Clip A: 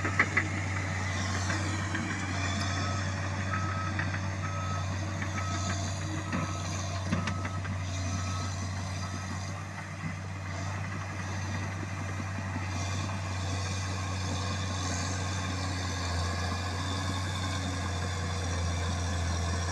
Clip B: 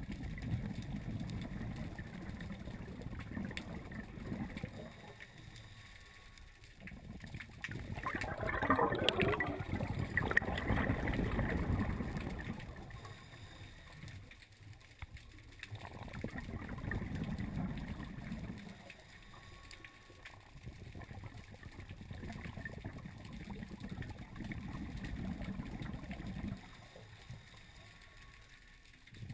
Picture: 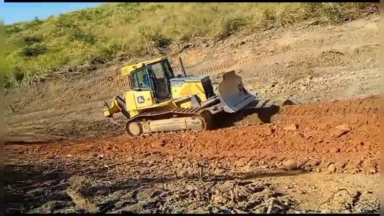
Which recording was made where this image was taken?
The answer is A